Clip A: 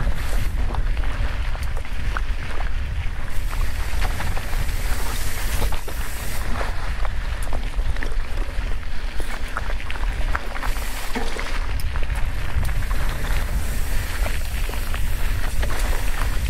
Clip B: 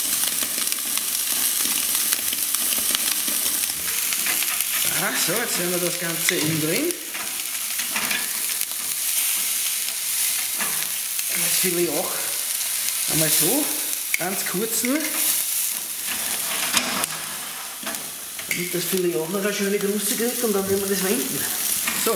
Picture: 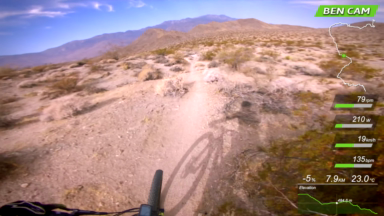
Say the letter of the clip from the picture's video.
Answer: A